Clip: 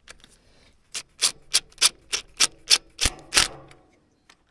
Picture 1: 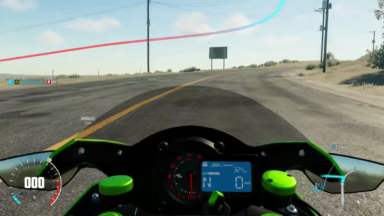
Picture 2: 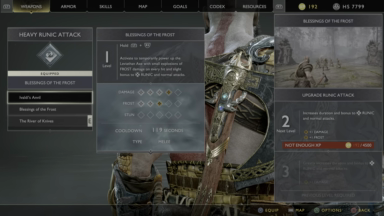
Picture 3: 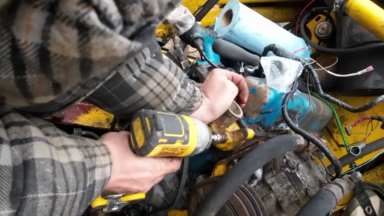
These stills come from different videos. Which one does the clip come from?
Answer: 3